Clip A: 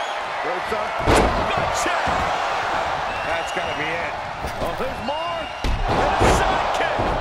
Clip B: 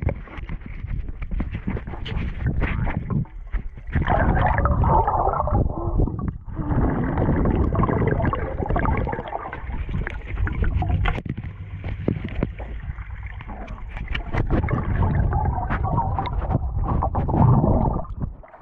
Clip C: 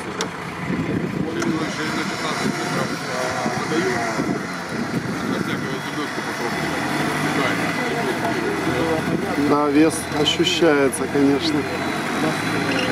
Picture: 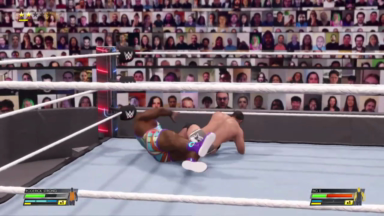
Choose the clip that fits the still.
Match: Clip A